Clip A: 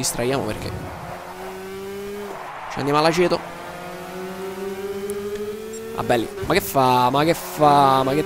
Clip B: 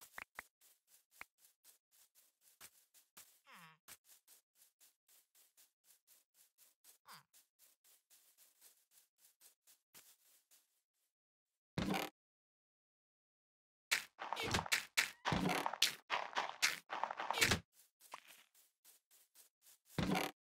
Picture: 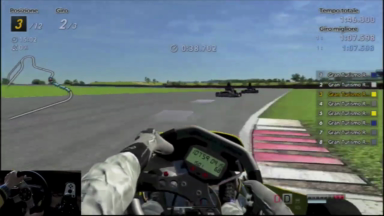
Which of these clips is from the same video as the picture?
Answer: A